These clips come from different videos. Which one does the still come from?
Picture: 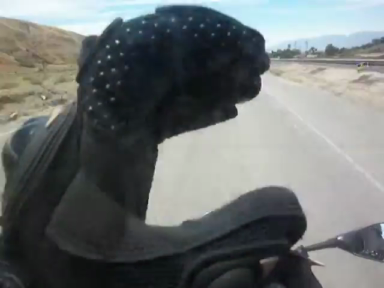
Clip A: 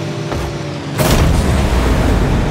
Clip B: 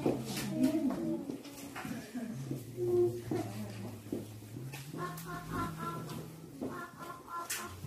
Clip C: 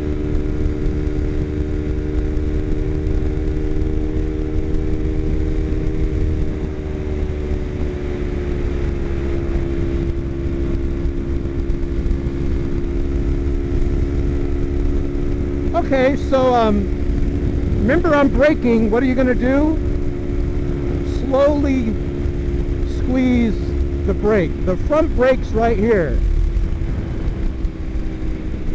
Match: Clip C